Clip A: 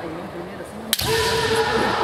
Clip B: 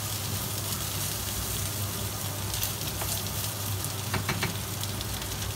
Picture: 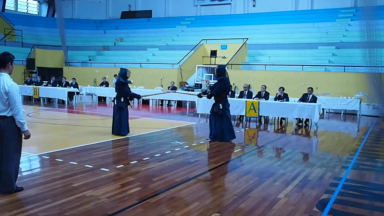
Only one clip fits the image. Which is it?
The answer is A